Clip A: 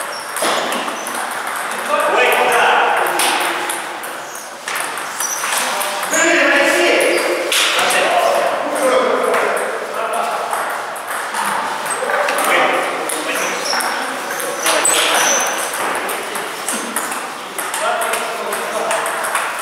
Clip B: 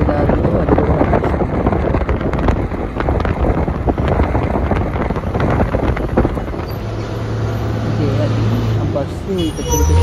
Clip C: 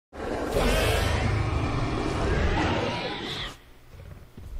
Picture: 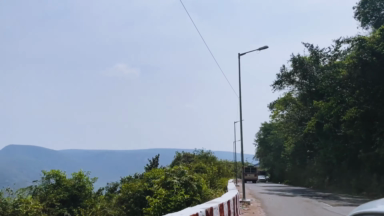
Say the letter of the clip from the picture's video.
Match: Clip B